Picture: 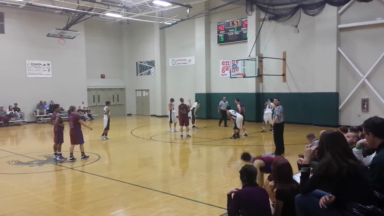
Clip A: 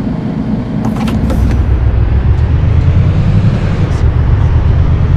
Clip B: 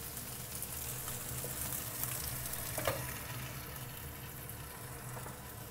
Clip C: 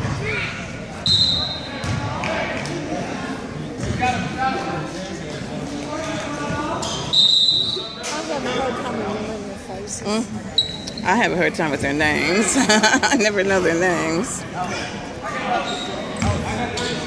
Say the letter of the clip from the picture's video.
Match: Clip C